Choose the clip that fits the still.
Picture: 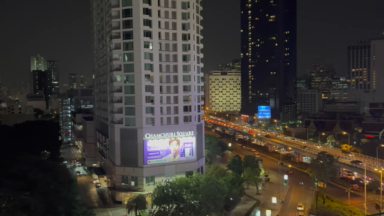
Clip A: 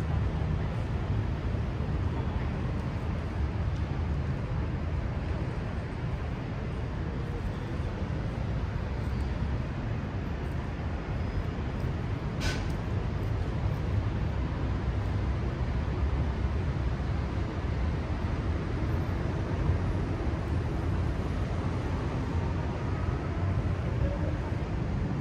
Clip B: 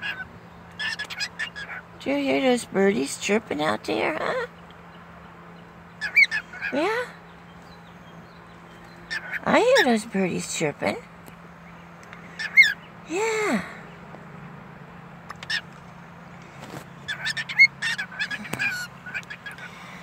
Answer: A